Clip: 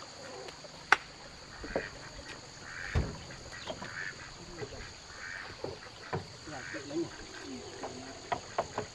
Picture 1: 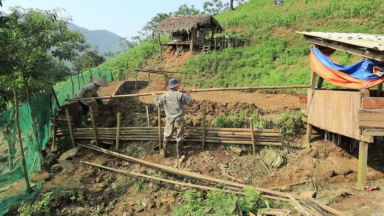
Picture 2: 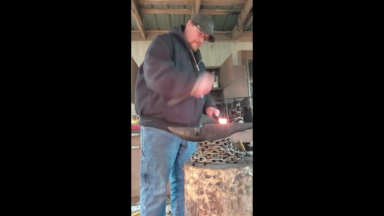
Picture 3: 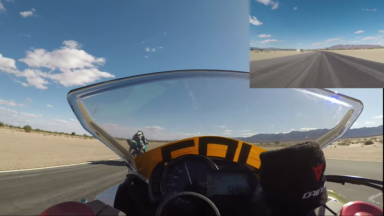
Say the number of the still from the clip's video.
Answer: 1